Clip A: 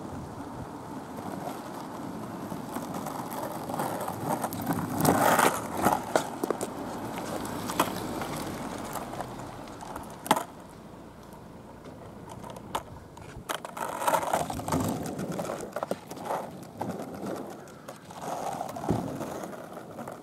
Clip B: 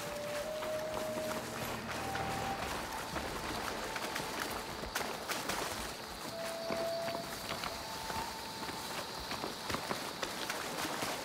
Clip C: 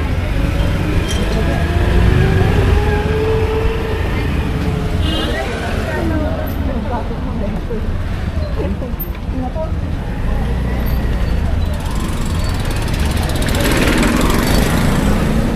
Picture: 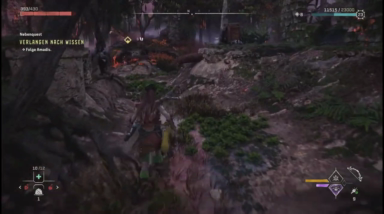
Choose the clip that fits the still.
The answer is B